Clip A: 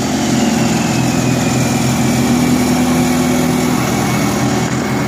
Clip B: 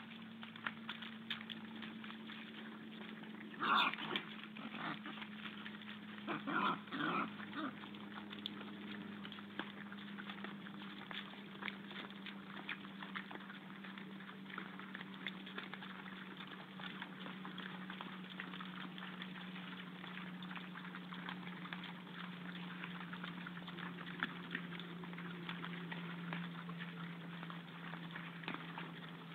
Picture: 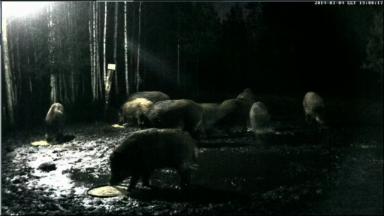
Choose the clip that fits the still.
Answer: B